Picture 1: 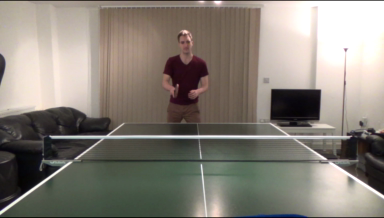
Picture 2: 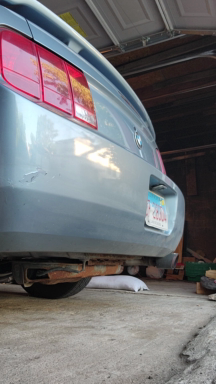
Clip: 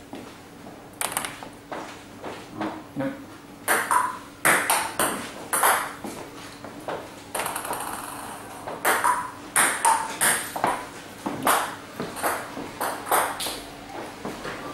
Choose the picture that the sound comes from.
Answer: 1